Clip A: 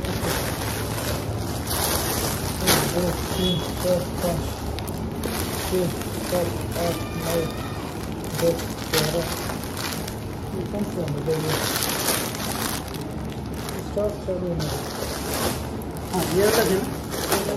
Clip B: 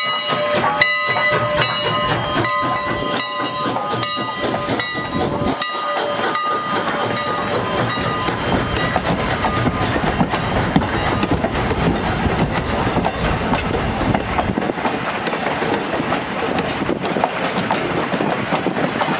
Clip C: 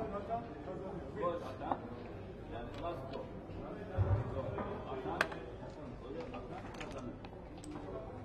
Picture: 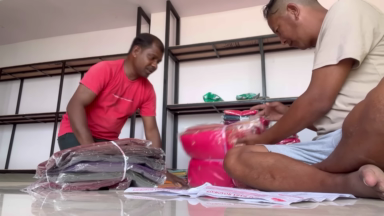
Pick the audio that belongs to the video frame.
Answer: A